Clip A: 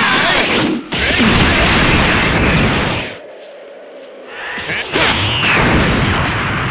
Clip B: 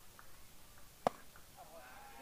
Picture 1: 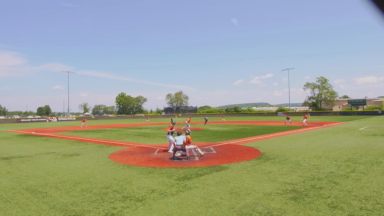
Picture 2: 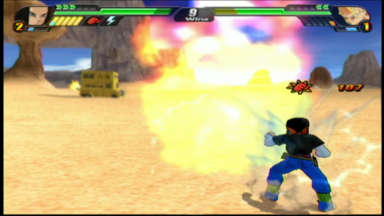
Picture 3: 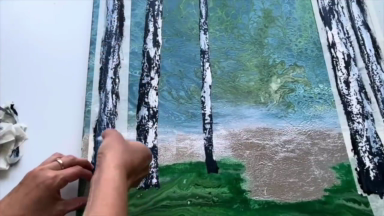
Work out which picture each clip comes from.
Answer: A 2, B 1